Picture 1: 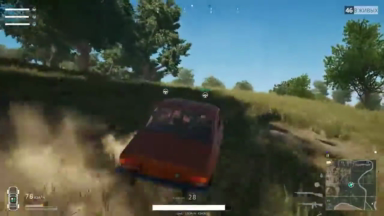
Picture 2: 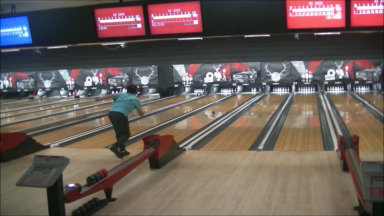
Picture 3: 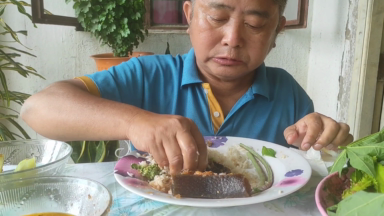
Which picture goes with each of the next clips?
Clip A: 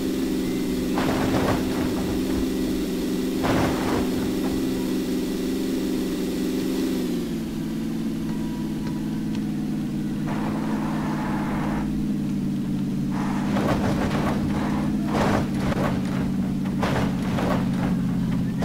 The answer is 1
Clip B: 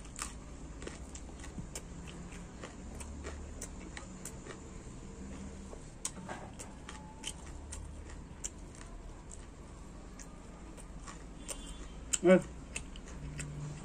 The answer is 3